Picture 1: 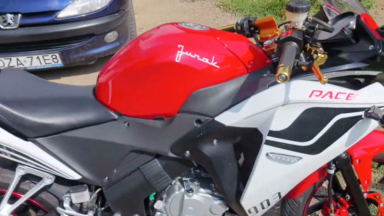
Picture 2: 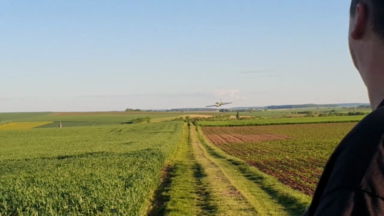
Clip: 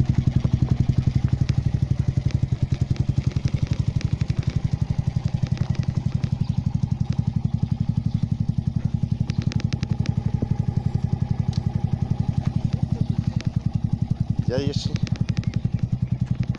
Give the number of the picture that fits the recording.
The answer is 1